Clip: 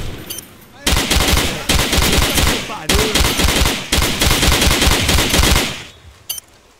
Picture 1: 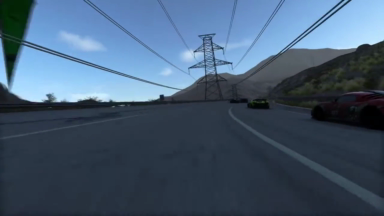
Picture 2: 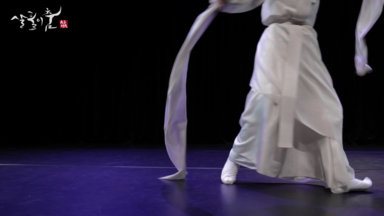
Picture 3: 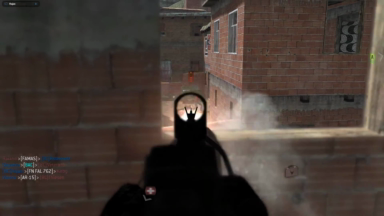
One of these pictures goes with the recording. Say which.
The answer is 3